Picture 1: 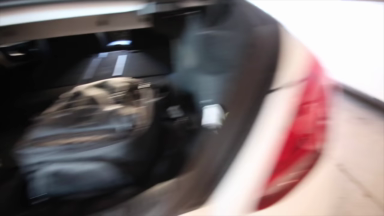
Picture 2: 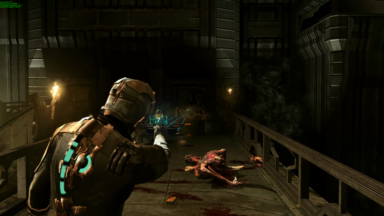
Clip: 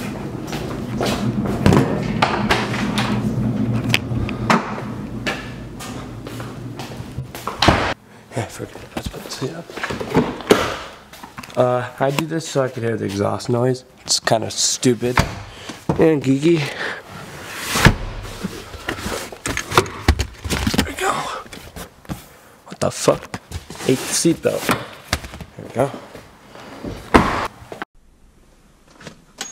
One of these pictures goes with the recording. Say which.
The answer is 1